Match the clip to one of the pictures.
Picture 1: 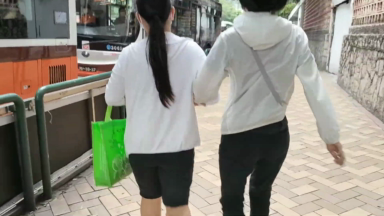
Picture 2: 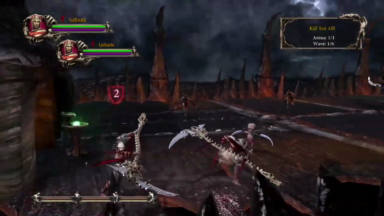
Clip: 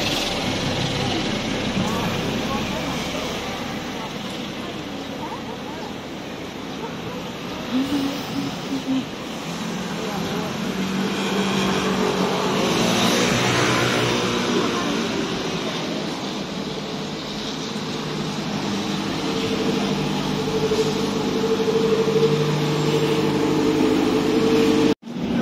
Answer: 1